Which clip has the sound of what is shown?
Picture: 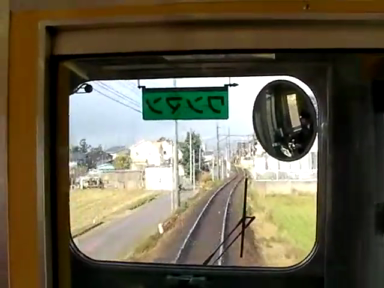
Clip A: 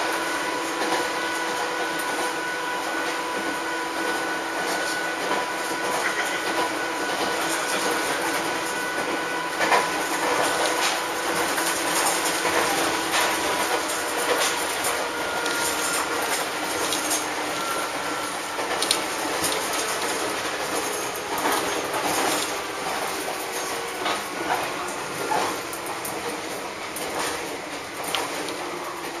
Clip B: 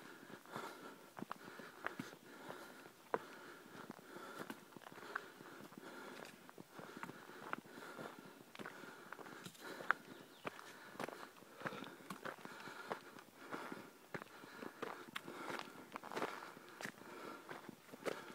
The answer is A